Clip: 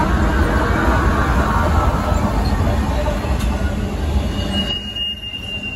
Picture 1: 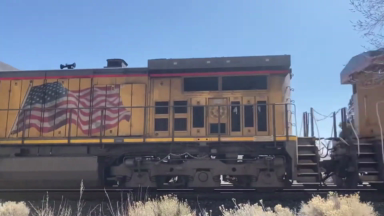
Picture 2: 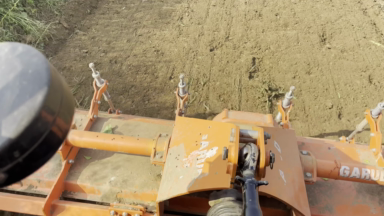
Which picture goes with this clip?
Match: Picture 1